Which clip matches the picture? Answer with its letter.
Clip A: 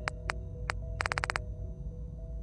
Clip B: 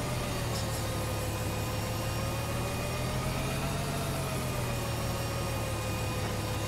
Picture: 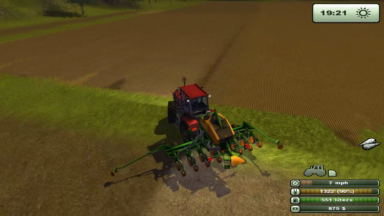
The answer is B